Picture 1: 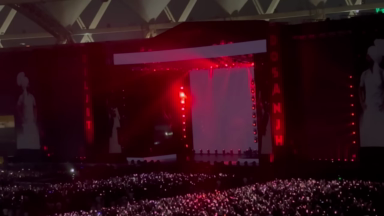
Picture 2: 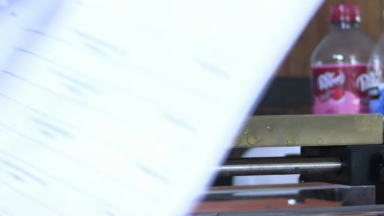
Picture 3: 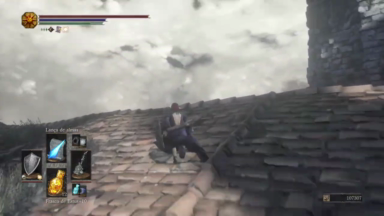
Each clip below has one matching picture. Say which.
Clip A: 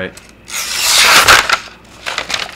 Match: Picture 2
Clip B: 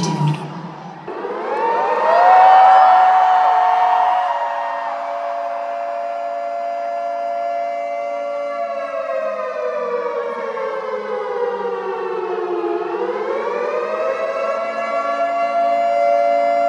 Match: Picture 1